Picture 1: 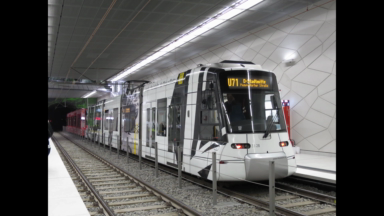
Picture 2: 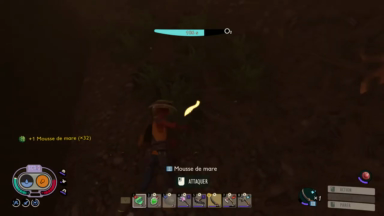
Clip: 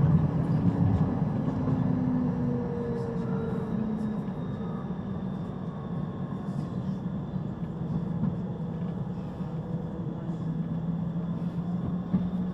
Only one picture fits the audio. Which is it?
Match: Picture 1